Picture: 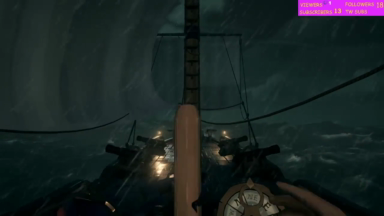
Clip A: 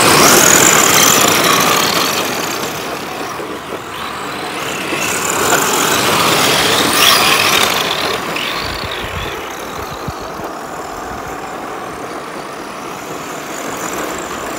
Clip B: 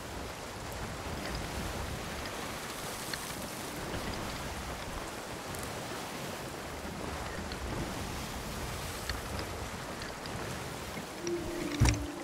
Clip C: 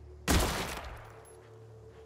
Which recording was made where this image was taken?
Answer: B